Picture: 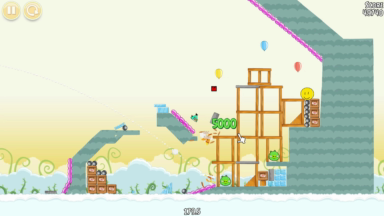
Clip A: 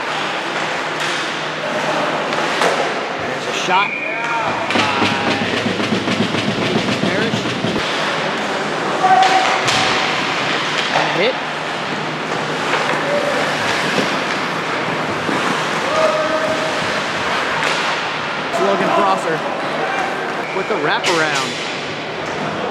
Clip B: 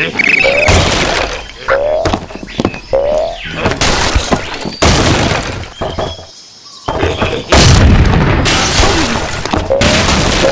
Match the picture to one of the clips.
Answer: B